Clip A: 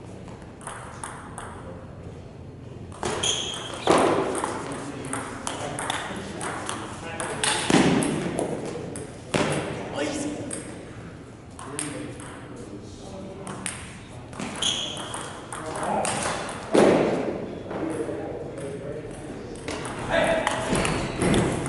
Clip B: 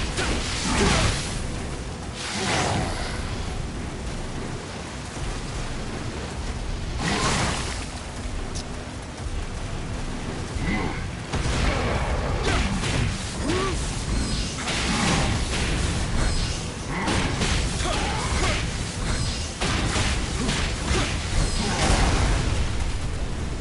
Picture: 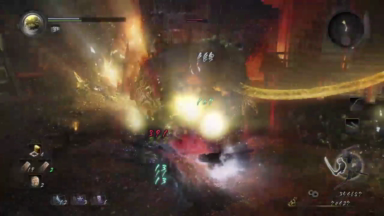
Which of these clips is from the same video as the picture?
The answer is B